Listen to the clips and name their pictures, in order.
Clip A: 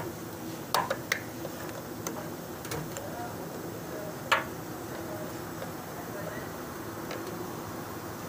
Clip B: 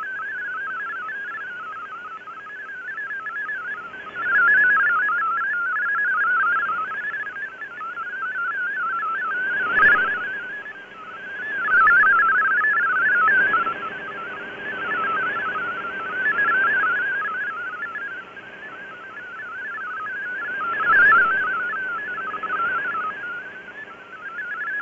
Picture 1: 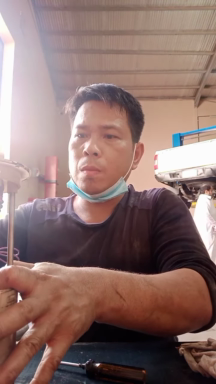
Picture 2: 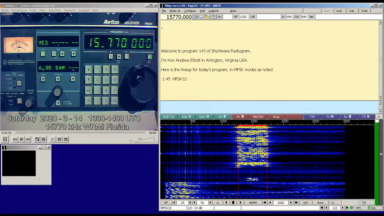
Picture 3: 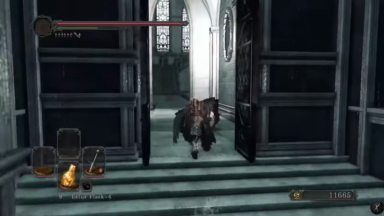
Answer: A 1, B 2